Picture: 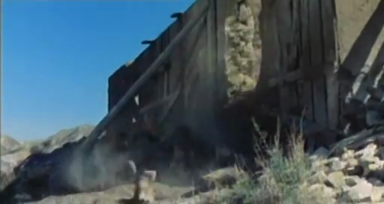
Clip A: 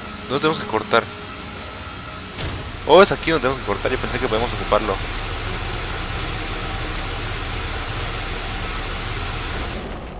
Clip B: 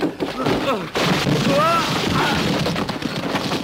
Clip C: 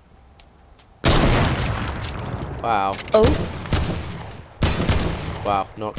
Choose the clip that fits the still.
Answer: B